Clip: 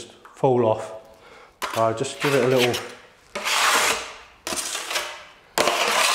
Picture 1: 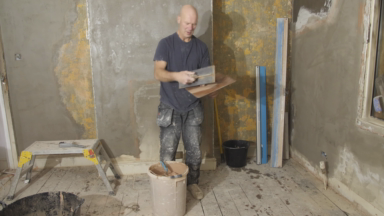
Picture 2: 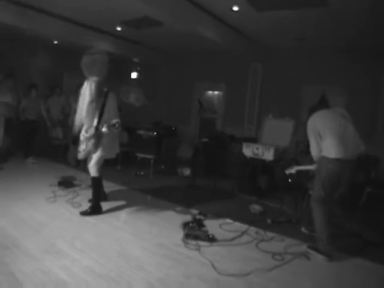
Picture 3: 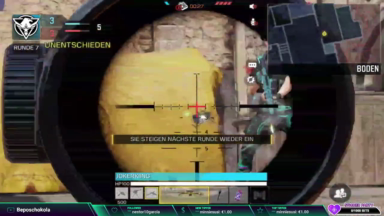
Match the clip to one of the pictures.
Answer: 1